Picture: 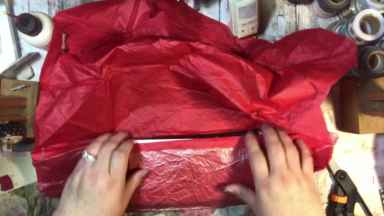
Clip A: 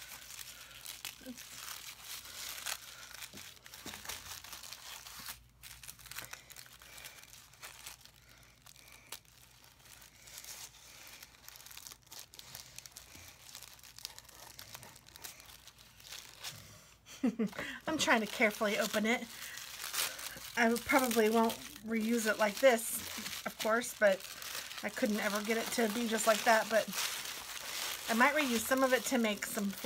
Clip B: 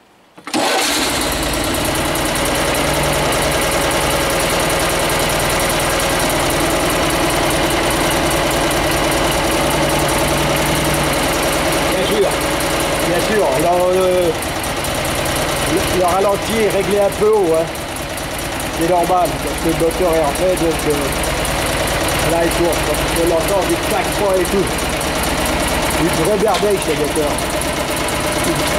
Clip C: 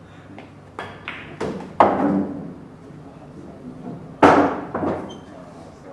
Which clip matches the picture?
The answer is A